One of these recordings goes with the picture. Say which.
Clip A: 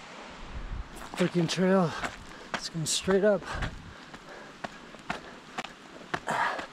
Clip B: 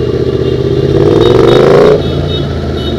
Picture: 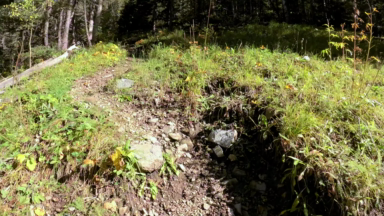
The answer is A